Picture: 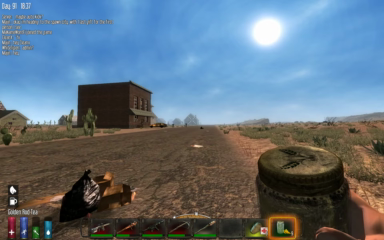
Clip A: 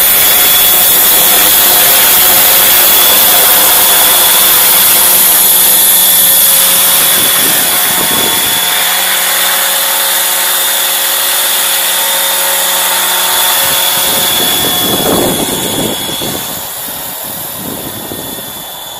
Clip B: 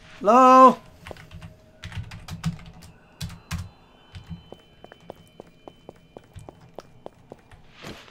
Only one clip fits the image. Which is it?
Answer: B